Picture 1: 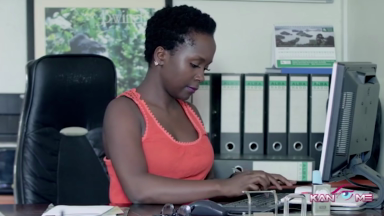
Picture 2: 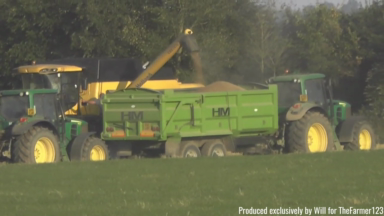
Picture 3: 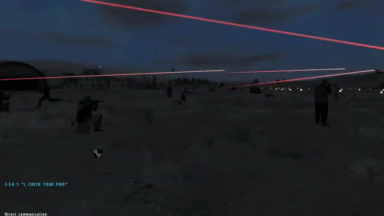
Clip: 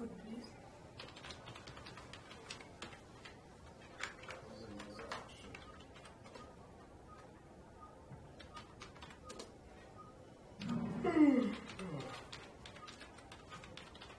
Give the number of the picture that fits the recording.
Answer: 1